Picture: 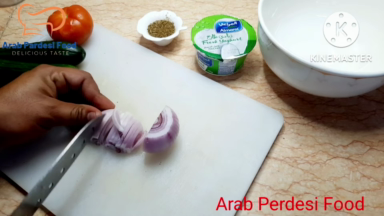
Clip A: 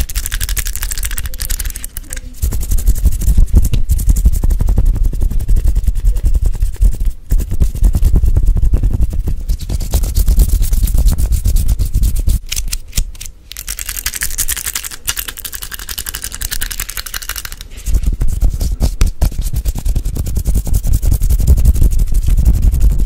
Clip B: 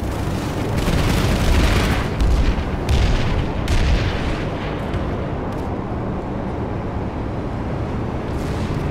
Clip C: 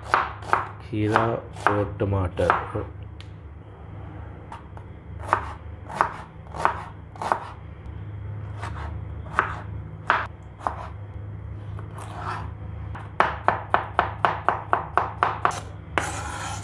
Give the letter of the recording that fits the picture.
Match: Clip C